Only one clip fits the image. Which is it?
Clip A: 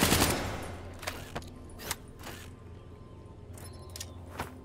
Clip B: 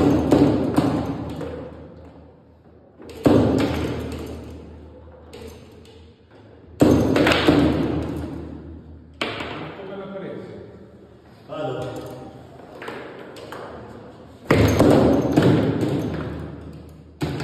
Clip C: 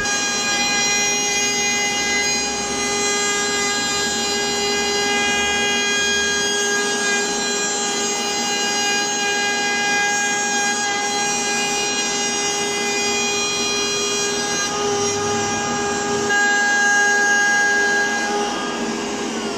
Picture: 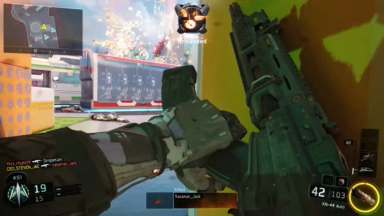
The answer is A